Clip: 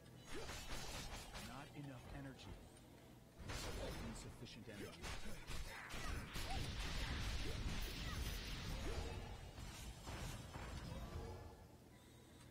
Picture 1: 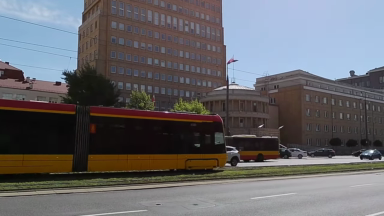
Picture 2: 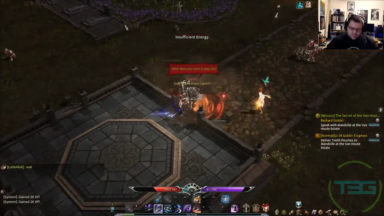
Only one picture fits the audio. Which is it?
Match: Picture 2